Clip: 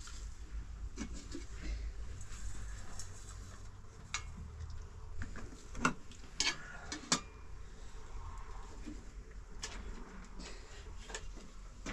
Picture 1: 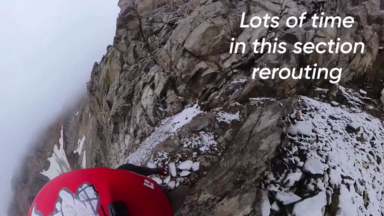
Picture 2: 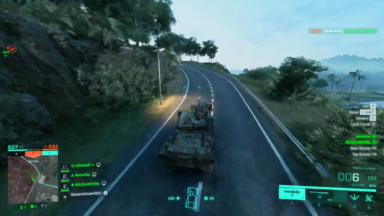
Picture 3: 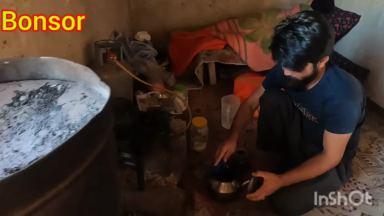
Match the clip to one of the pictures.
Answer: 3